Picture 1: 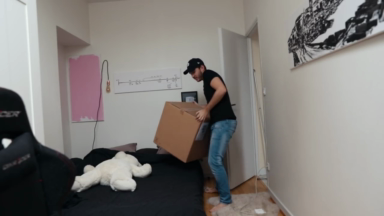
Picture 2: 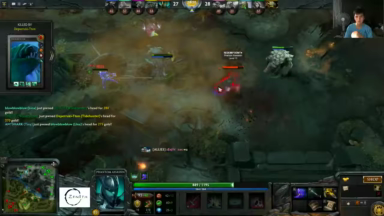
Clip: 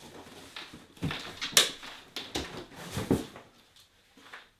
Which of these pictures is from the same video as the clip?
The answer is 1